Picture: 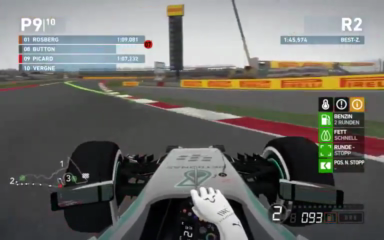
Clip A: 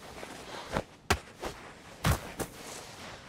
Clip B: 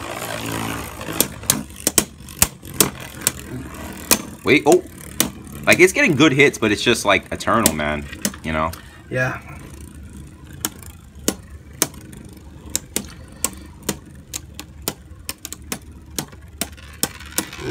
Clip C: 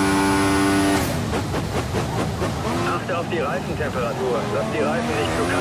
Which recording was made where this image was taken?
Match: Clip C